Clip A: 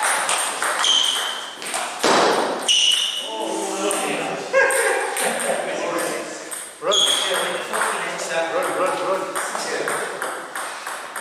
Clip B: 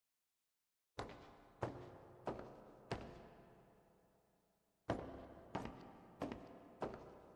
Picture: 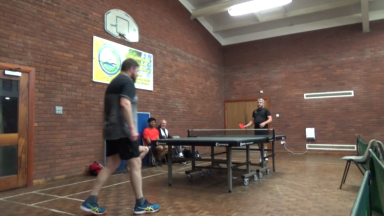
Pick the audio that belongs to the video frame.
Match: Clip A